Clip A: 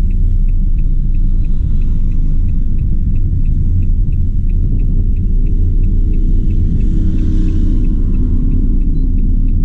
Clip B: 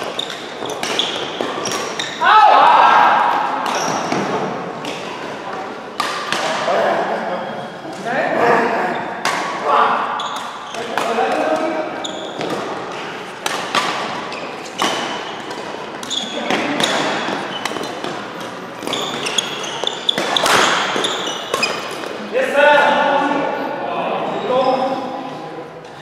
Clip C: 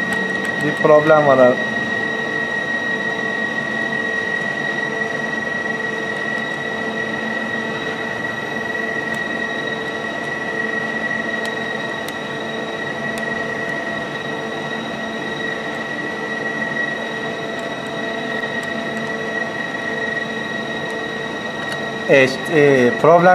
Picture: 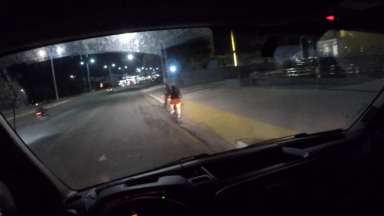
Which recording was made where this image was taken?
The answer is A